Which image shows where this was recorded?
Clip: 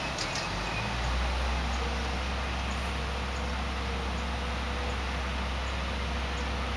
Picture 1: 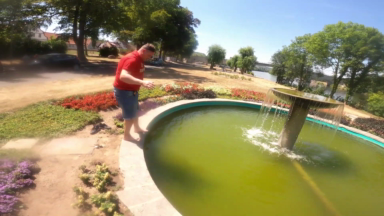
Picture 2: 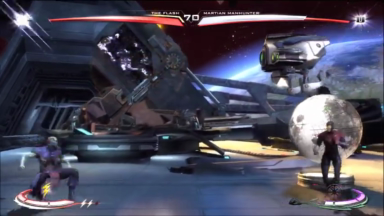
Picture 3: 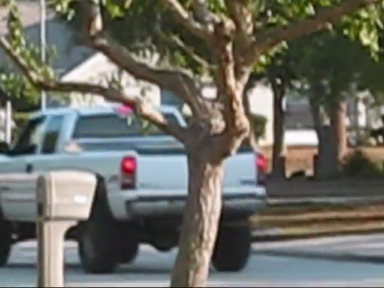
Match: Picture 3